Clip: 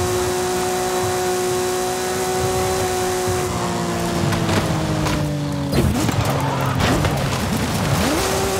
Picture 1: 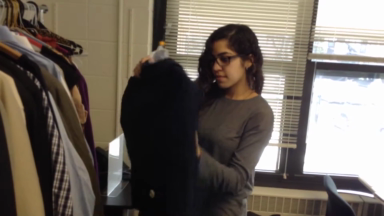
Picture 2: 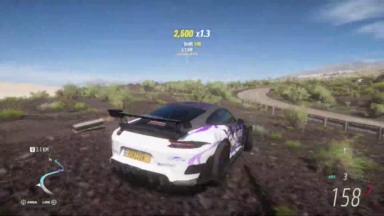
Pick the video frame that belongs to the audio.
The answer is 2